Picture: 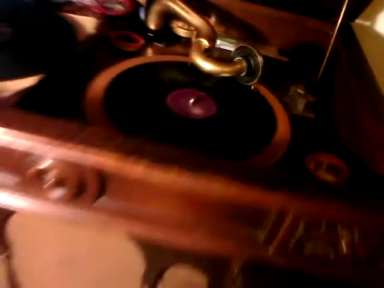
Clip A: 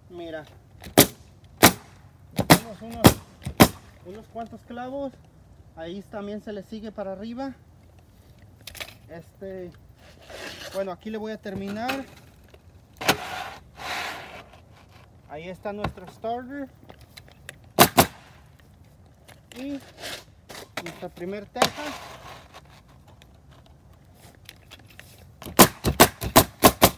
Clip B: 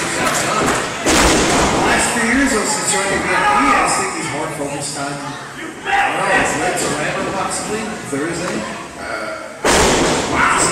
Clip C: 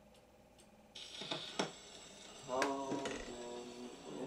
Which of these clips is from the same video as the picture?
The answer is C